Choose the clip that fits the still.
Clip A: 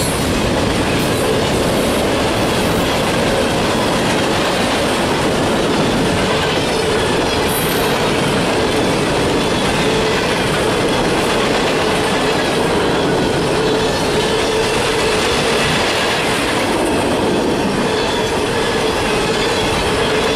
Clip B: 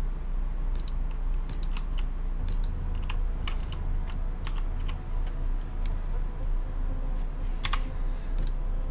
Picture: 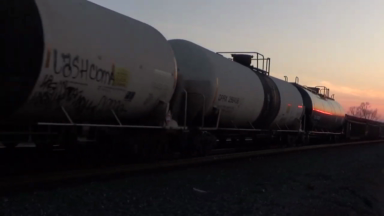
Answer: A